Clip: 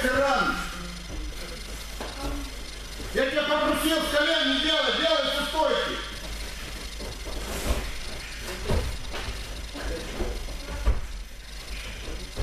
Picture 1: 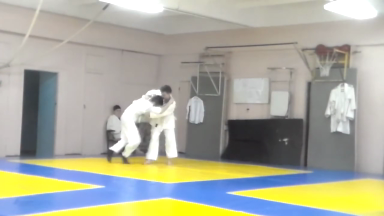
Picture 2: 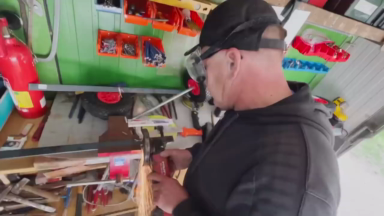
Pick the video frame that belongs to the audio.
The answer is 1